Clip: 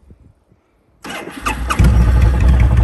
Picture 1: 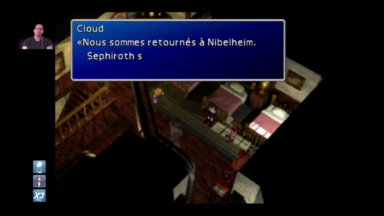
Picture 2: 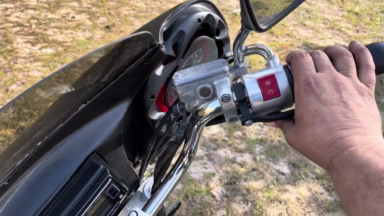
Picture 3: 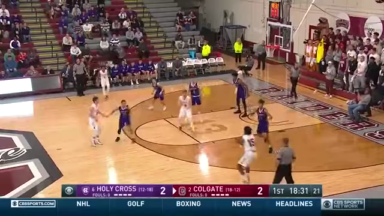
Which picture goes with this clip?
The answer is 2